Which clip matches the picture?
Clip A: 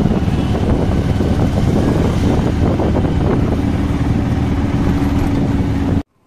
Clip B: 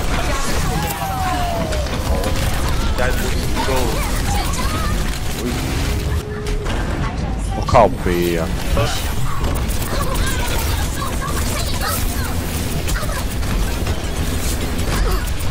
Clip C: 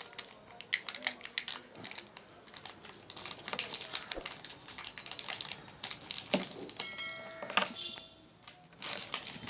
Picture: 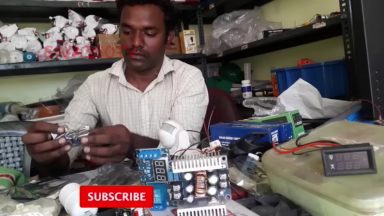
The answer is C